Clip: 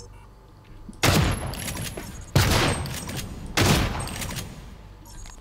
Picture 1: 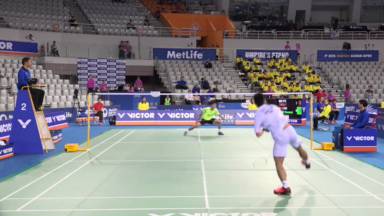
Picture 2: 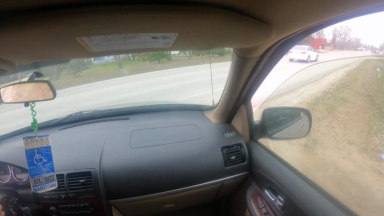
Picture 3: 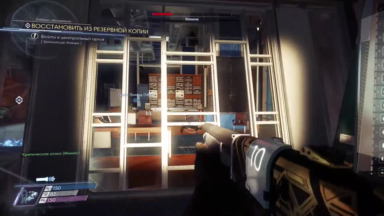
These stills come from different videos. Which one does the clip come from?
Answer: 3